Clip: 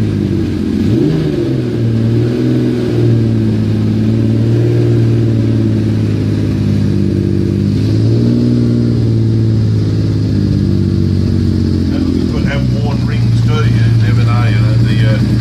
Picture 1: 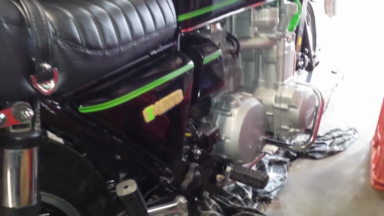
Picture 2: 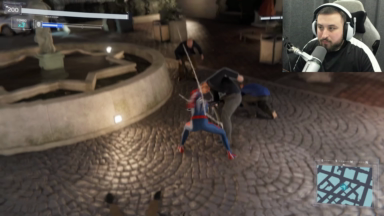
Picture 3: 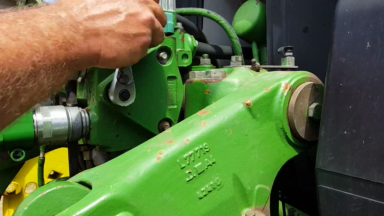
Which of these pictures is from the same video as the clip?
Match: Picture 1